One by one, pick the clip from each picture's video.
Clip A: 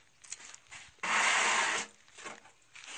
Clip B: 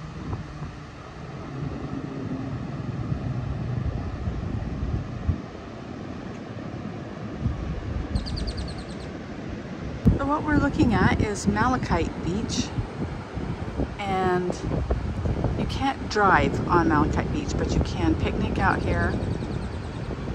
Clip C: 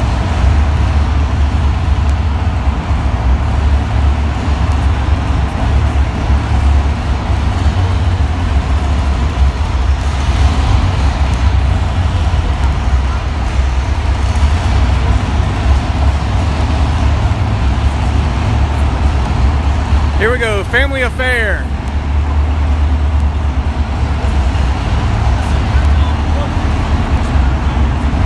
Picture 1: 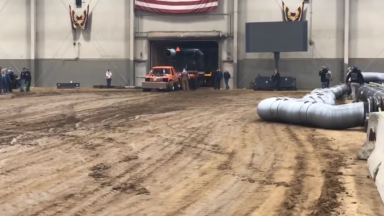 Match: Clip C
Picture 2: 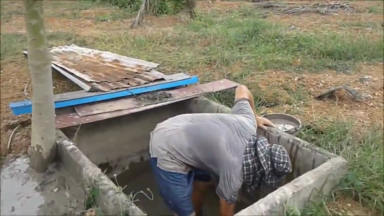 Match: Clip A